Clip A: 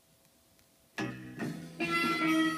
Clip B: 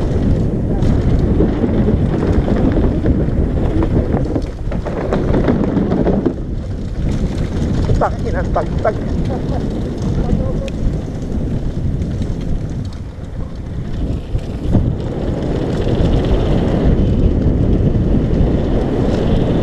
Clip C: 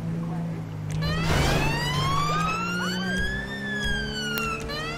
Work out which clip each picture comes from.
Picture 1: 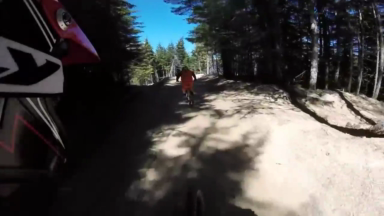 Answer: B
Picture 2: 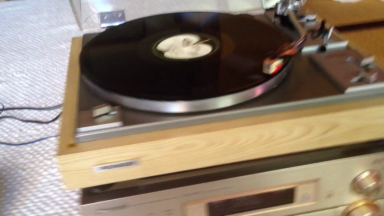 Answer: A